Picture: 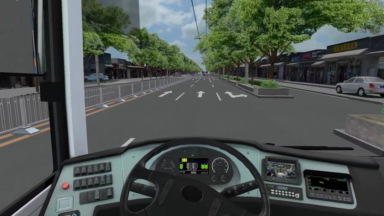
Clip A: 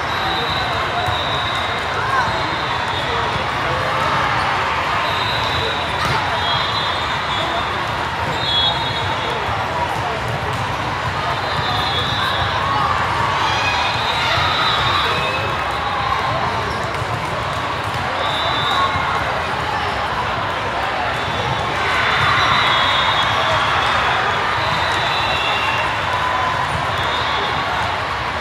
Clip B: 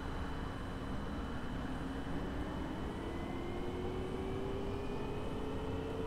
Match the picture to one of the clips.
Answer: B